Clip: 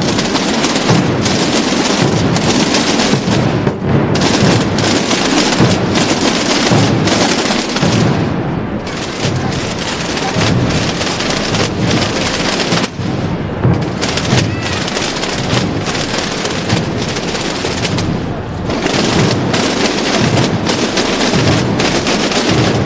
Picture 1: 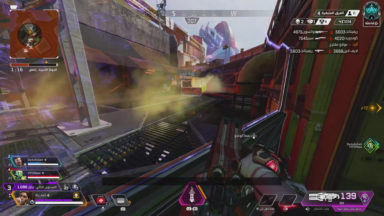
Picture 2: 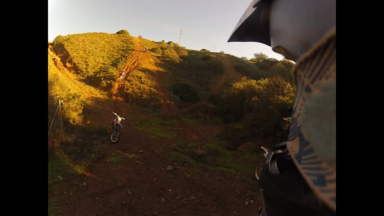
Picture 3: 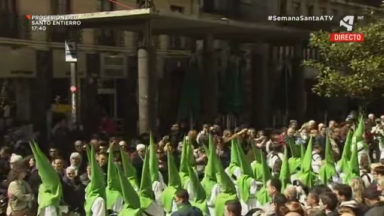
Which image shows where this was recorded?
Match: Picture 3